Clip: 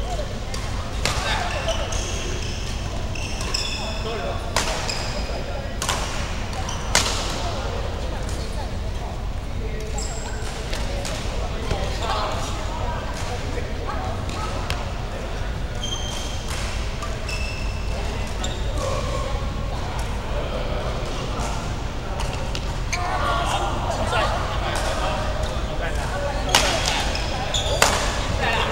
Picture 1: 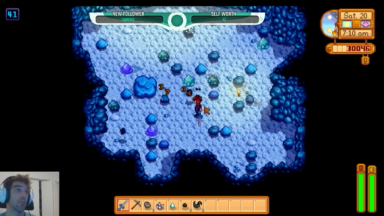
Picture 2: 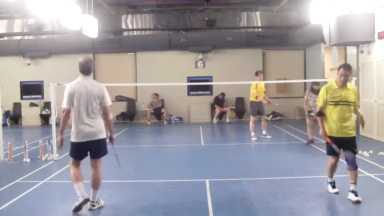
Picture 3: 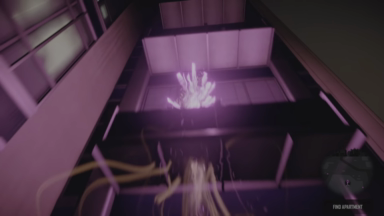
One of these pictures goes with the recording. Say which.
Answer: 2